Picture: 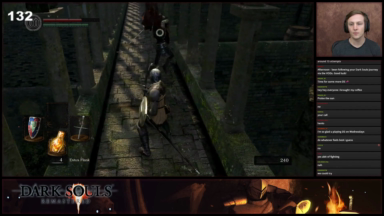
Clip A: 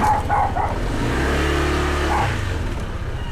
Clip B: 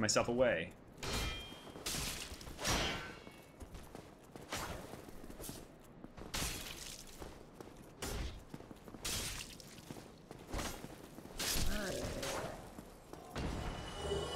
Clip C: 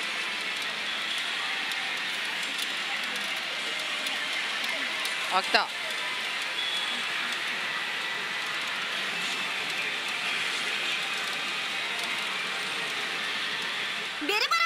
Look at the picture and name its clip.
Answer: B